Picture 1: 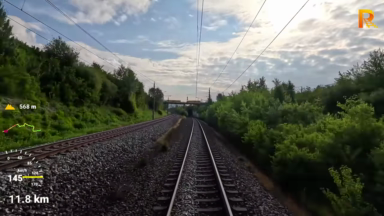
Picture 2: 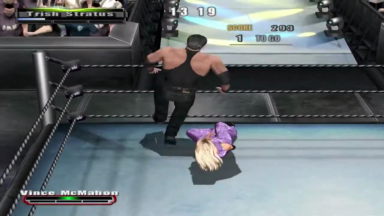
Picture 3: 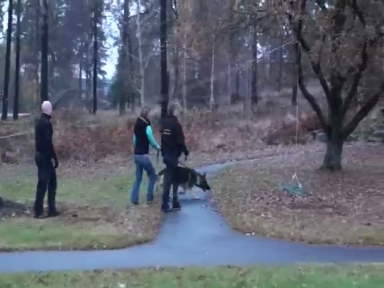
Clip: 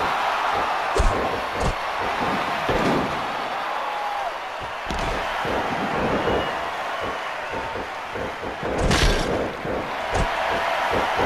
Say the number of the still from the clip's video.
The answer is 2